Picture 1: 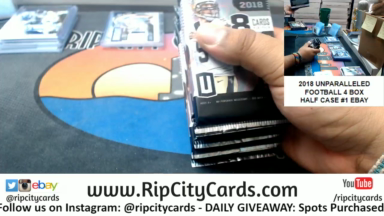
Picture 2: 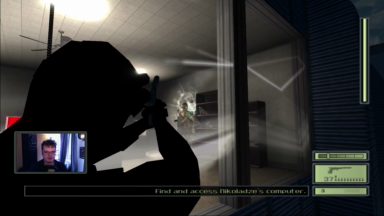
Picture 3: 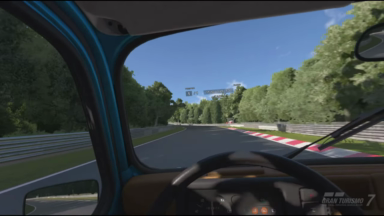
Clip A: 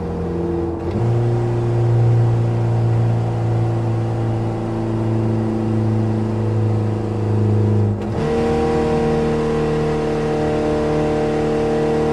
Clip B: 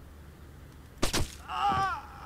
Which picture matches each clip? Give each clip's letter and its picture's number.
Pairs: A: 3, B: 2